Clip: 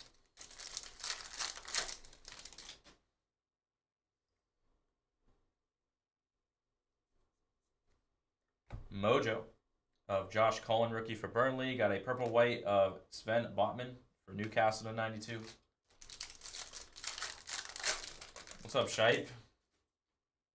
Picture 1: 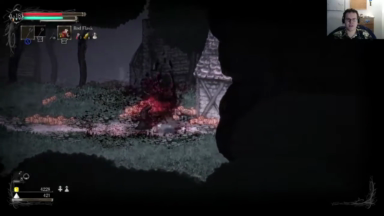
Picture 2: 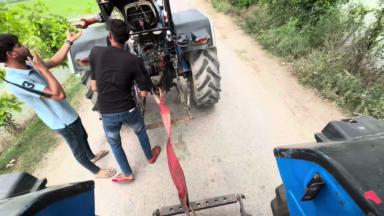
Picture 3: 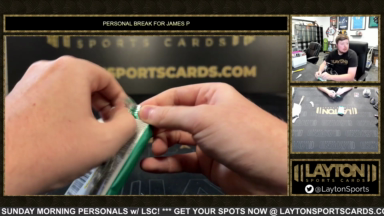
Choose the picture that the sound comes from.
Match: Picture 3